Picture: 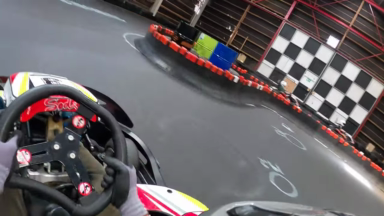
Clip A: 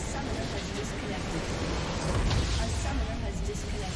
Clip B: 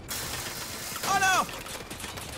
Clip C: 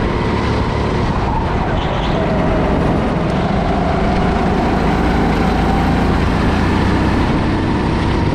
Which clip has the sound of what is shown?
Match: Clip C